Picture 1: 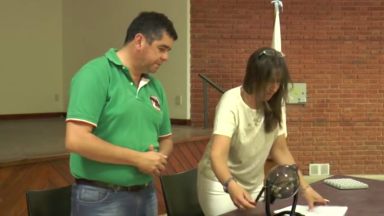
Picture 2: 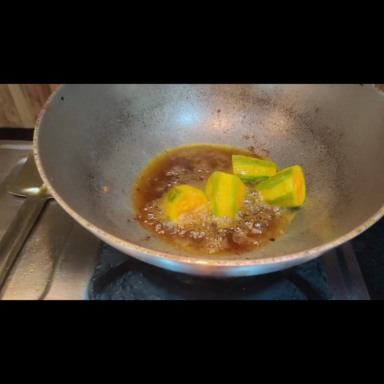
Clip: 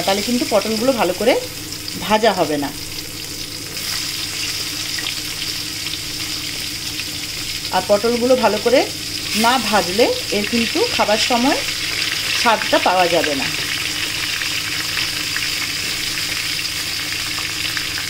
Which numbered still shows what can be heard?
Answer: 2